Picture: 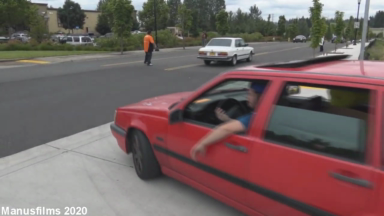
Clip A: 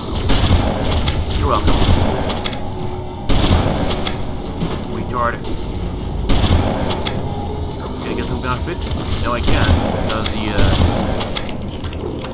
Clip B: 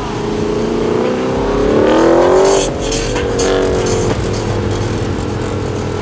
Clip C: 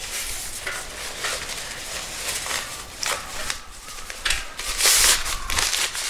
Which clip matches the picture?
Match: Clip B